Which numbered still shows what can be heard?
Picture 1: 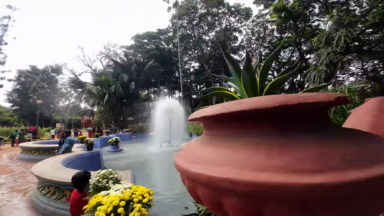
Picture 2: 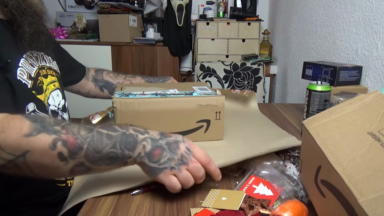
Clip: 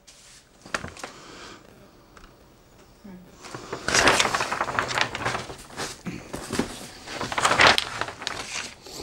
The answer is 2